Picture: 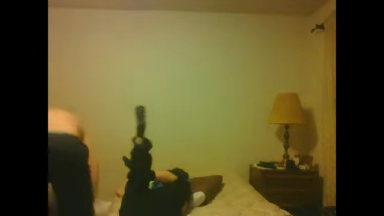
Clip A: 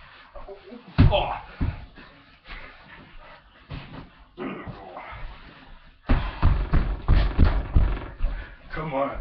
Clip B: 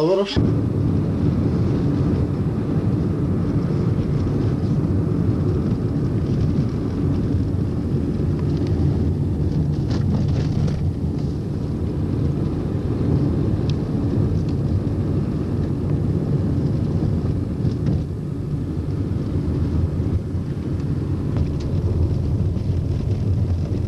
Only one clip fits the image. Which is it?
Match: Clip A